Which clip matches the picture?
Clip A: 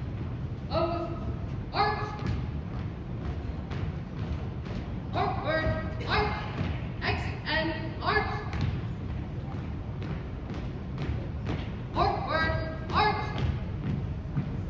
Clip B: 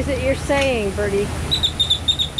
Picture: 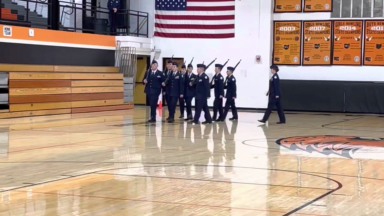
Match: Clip A